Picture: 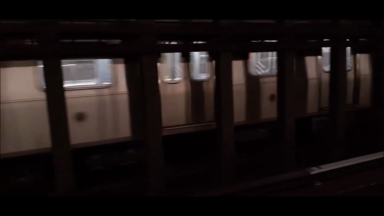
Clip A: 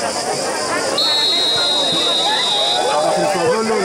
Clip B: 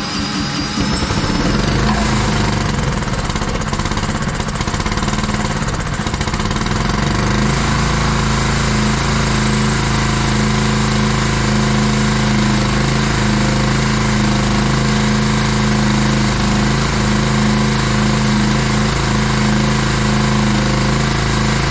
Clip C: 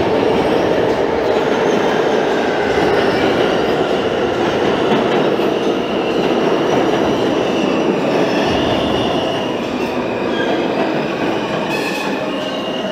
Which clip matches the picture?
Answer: C